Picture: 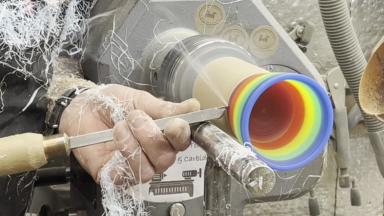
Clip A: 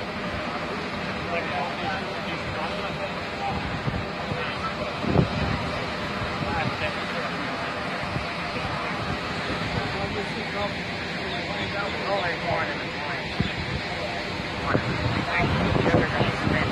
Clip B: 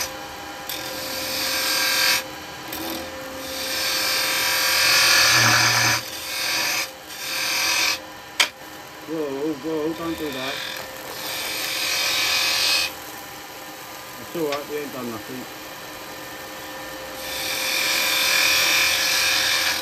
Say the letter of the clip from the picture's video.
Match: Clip B